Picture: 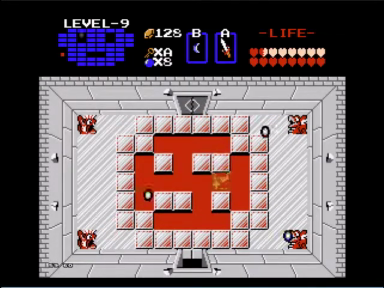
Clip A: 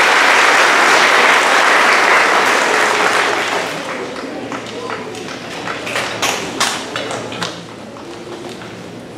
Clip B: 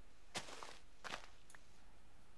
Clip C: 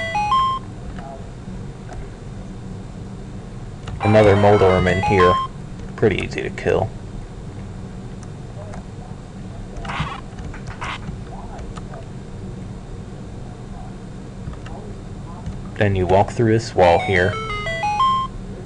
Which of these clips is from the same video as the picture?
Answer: C